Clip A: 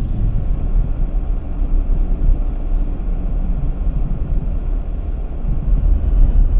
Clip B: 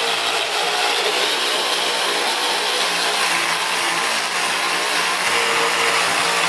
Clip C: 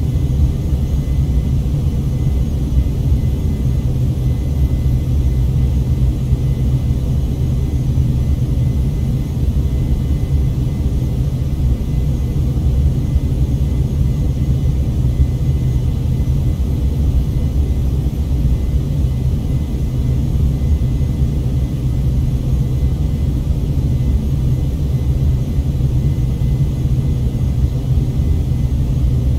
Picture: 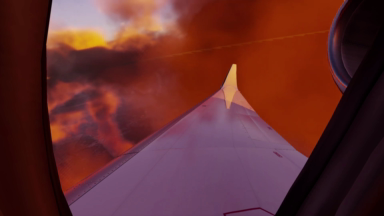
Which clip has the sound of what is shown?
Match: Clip C